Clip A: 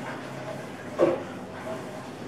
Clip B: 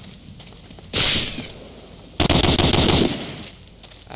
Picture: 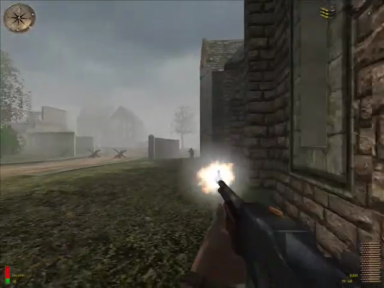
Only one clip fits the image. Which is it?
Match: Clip B